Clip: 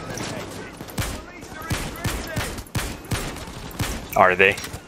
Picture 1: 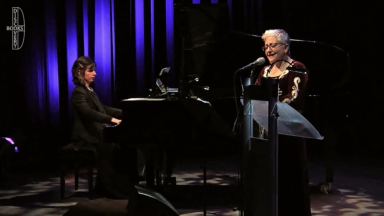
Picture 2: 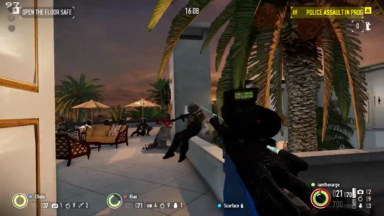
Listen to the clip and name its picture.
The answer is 2